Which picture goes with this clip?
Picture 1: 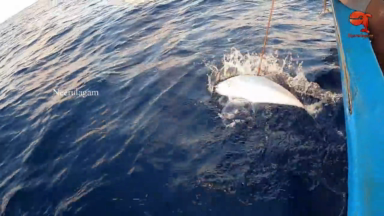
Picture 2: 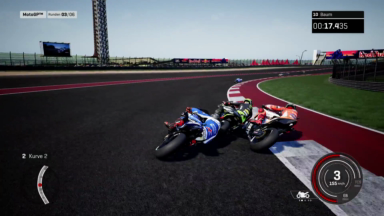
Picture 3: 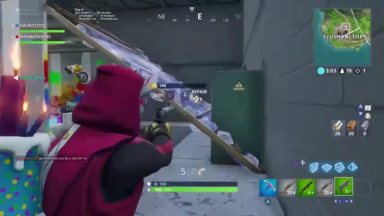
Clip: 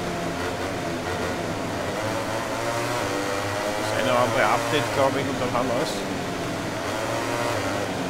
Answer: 2